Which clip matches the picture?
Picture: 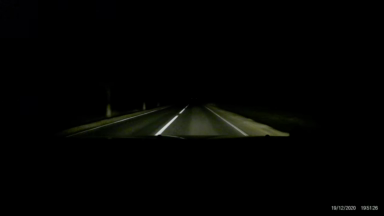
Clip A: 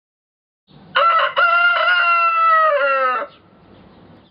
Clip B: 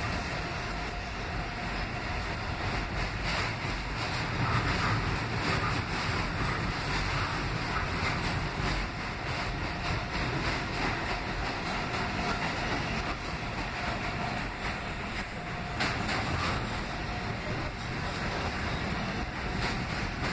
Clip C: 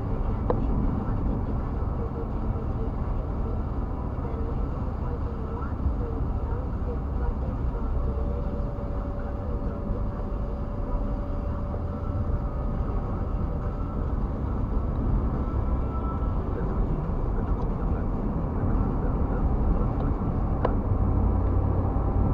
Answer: C